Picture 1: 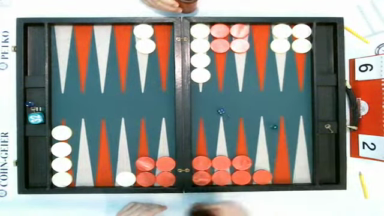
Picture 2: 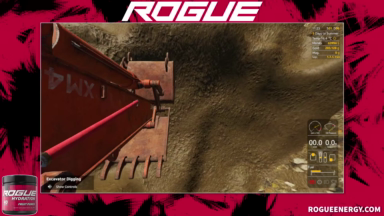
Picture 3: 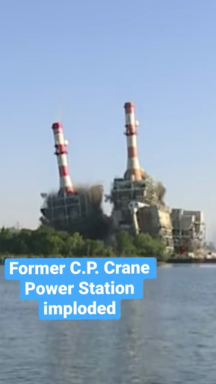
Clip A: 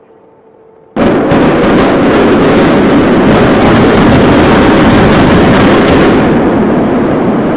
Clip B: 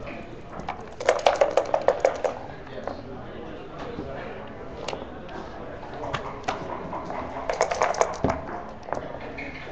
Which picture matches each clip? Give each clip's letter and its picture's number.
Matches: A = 3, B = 1